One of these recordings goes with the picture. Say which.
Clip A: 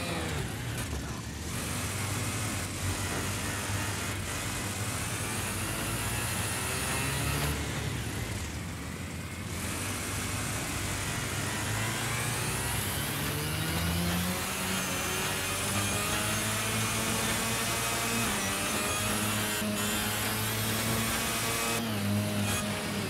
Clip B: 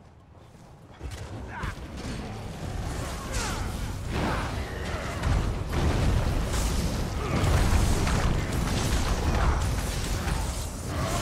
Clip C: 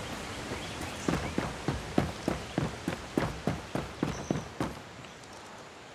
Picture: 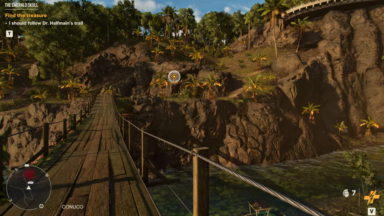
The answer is C